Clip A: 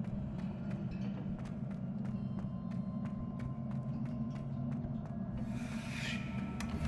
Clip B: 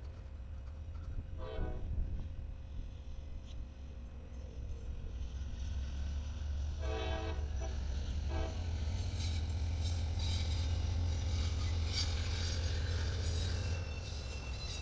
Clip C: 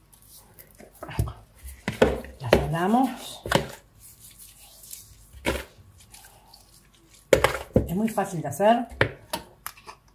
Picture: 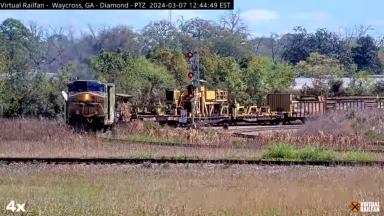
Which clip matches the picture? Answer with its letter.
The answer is B